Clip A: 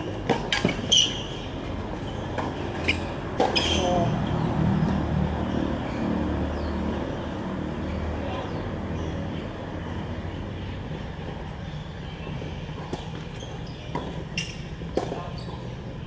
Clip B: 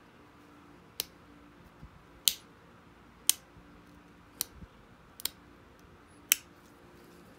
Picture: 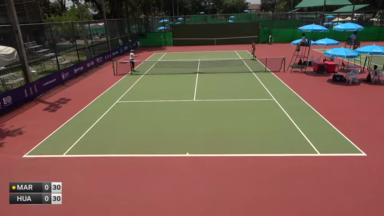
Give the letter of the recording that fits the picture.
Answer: A